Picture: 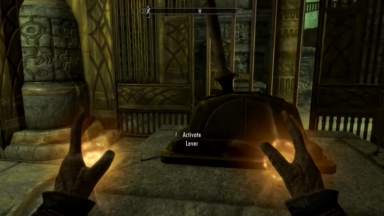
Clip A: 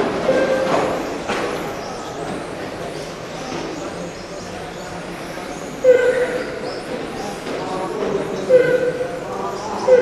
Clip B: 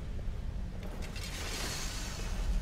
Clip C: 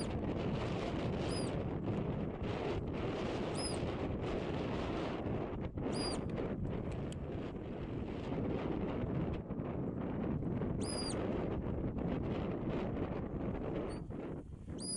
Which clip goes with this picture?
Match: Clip B